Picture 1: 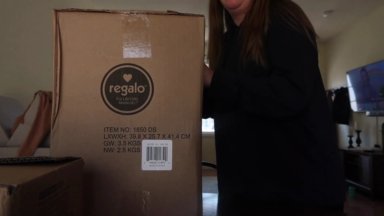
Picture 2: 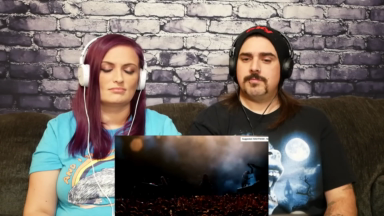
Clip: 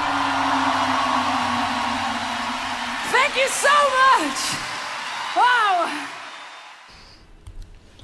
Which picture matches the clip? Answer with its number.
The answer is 2